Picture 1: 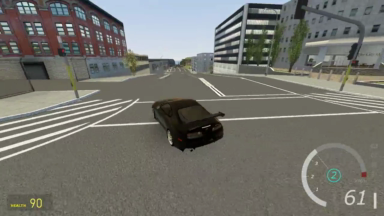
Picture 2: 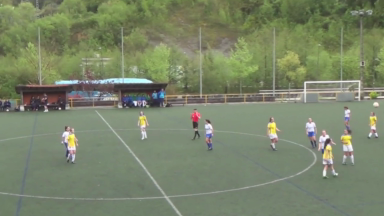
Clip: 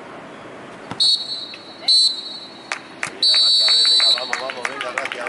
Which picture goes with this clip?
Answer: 2